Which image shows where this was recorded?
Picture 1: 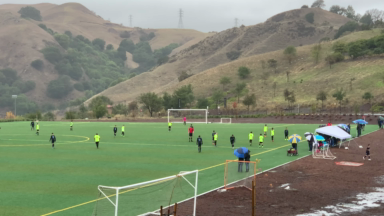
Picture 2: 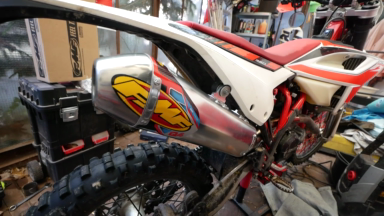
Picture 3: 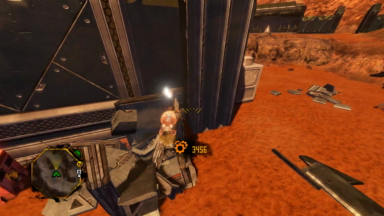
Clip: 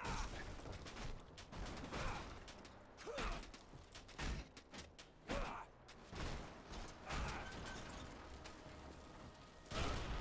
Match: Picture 3